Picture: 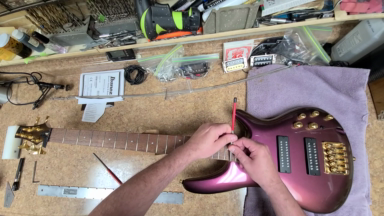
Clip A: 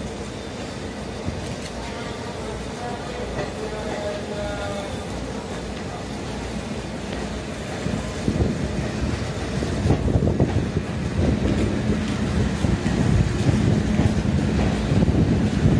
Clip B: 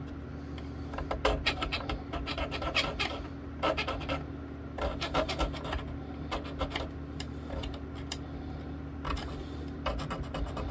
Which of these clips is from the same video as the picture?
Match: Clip B